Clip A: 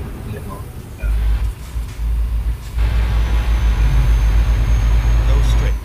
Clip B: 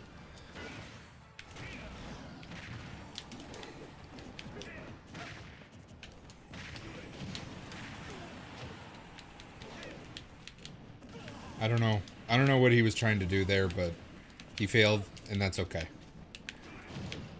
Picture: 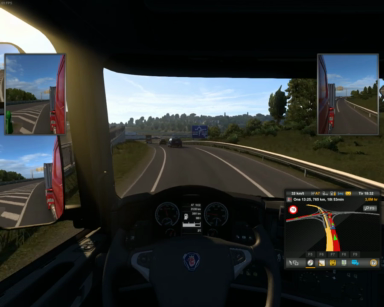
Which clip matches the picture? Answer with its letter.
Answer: A